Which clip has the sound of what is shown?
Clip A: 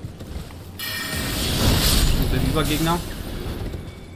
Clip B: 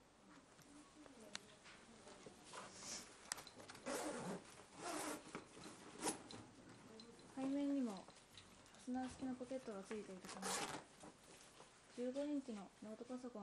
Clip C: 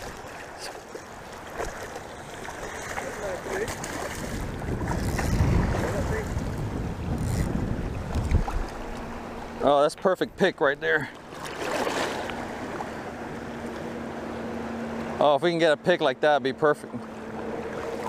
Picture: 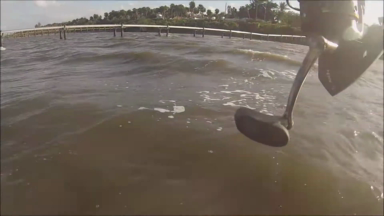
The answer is C